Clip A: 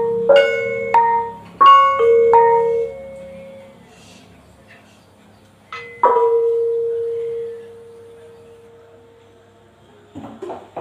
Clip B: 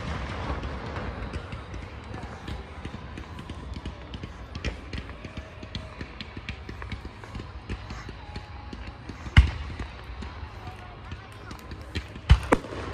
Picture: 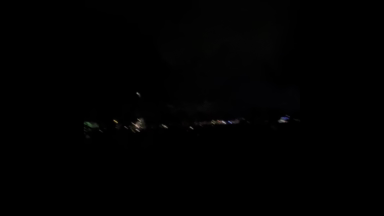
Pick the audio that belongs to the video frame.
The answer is B